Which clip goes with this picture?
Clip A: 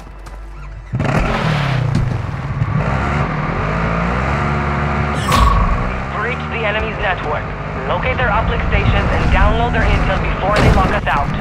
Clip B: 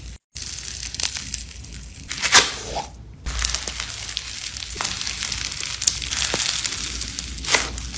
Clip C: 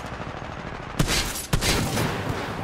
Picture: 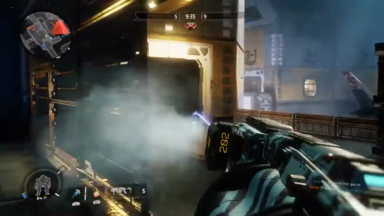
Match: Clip C